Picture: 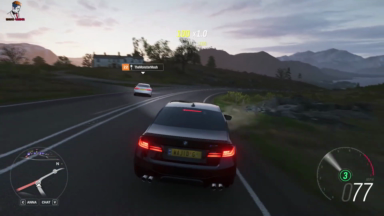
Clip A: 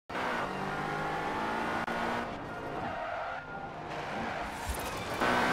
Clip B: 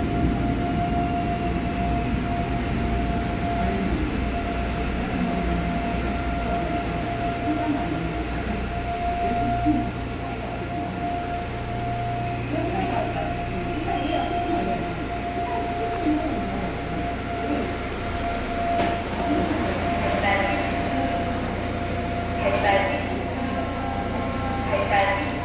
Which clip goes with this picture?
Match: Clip A